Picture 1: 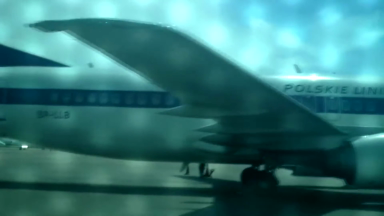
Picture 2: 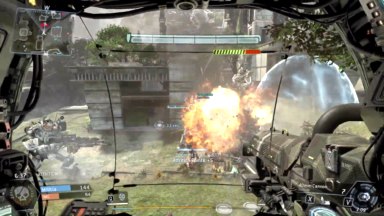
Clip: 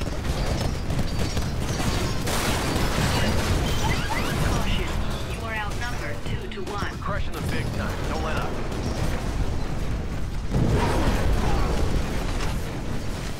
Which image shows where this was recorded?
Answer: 2